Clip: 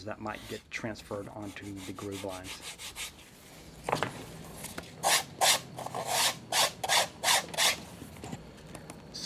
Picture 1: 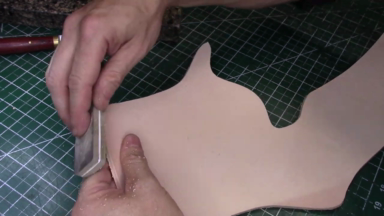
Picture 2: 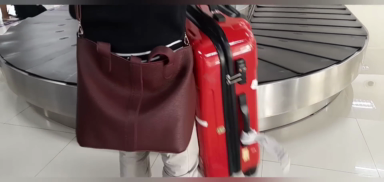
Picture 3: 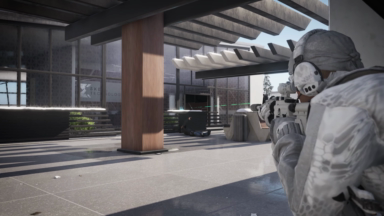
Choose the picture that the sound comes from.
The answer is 1